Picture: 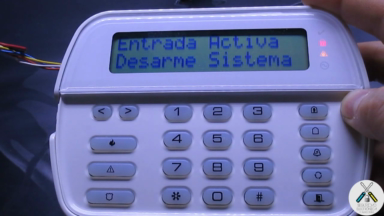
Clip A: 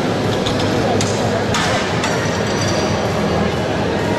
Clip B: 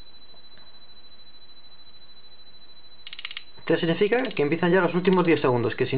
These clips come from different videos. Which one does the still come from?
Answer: B